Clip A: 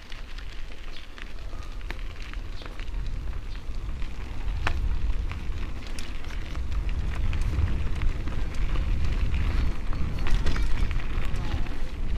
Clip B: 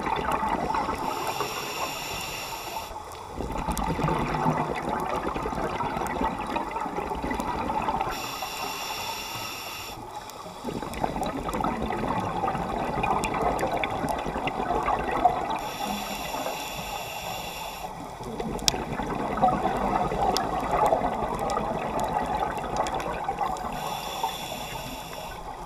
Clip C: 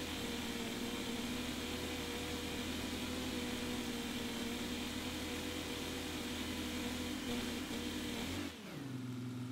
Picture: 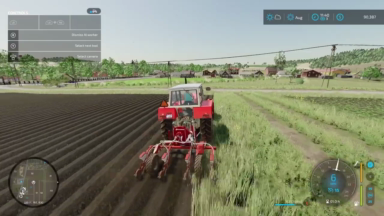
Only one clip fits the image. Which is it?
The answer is C